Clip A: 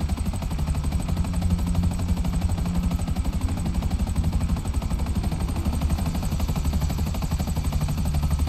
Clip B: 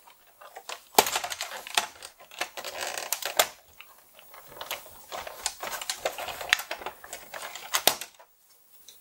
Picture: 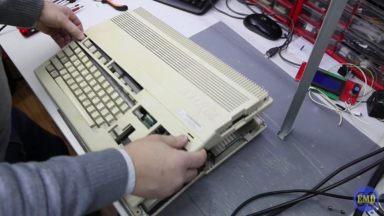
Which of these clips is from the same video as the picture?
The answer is B